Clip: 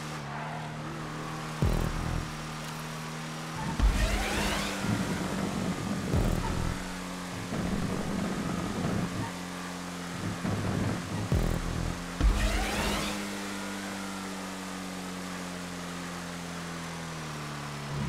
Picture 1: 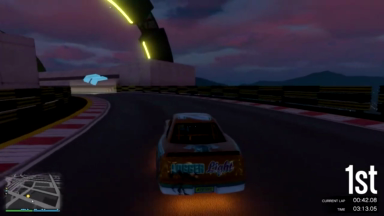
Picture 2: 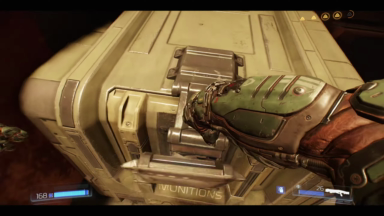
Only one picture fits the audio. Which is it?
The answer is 1